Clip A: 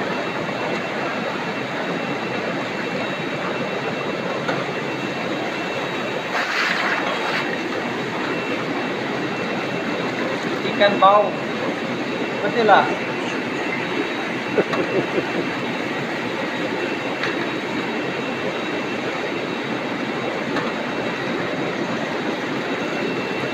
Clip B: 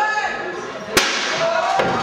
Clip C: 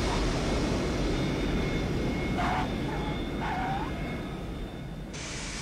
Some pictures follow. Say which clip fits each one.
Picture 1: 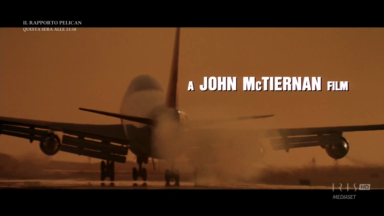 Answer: C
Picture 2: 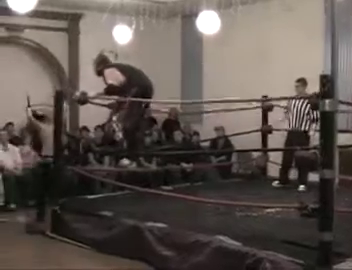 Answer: B